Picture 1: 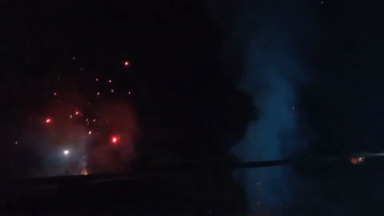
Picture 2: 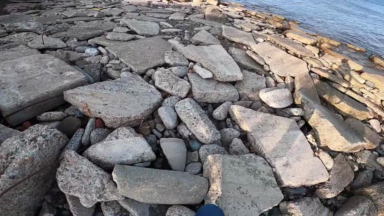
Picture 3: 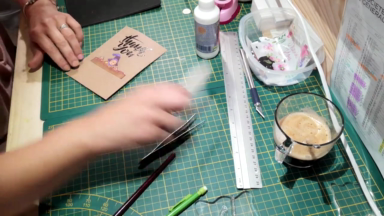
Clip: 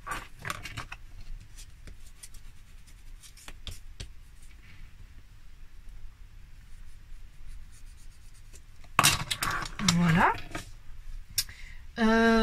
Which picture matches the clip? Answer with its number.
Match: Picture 3